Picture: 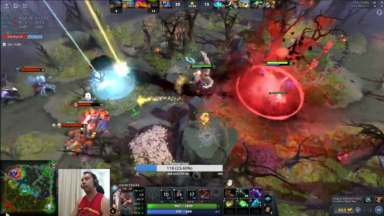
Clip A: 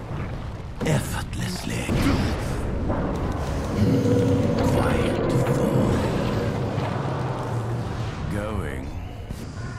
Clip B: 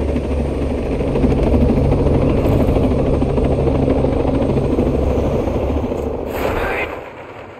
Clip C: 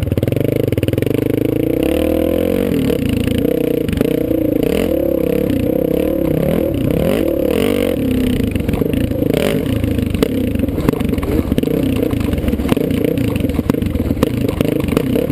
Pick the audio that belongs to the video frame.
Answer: A